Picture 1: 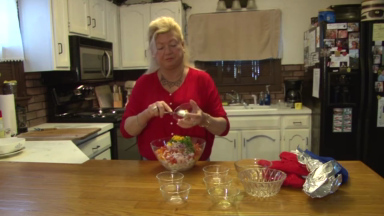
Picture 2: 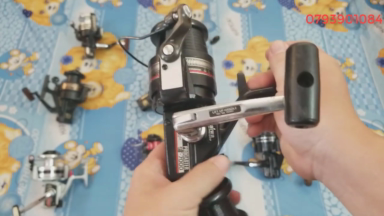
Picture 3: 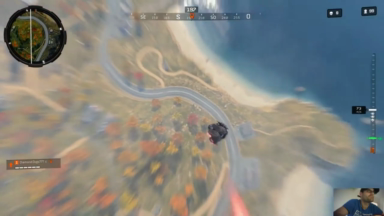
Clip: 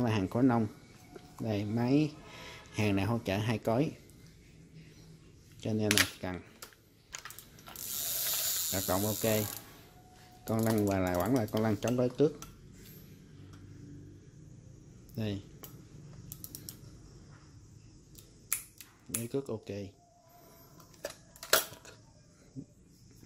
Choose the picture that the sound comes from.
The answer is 2